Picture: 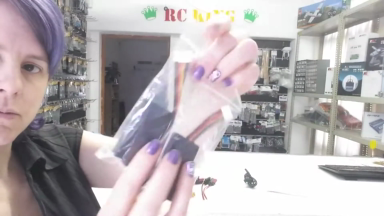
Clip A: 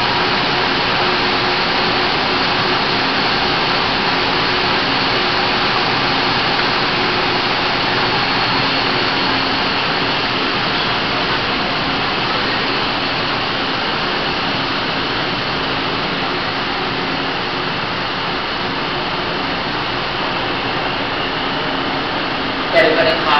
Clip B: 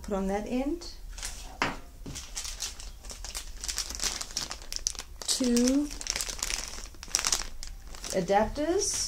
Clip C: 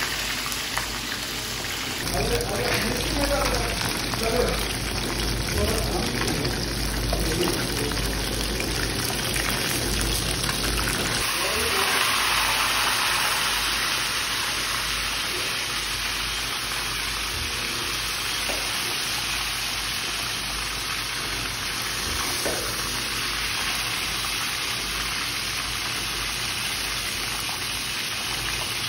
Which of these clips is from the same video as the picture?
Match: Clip B